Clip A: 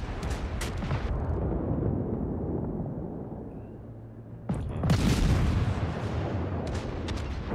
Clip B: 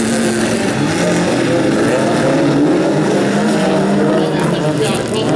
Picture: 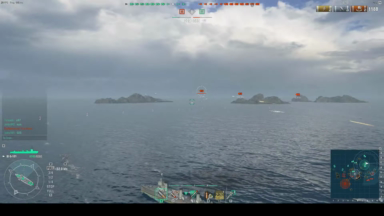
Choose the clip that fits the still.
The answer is A